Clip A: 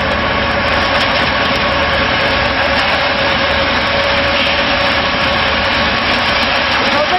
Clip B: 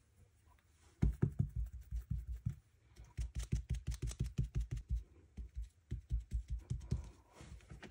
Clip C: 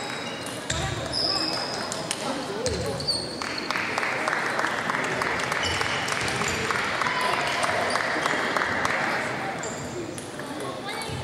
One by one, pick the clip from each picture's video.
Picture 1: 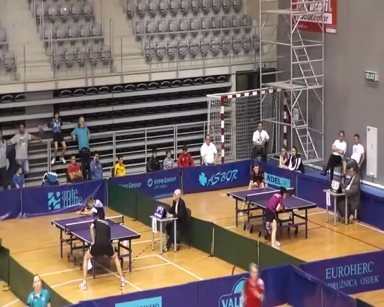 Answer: C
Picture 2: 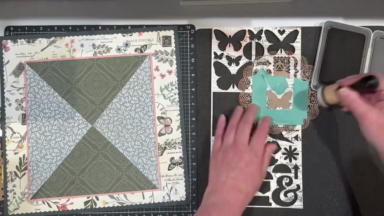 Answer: B